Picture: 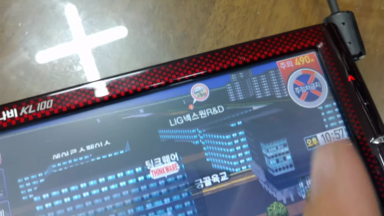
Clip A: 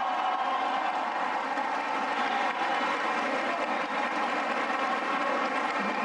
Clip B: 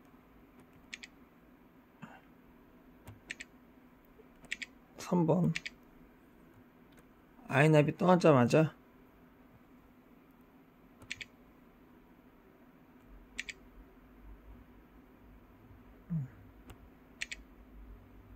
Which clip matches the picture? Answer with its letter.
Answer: B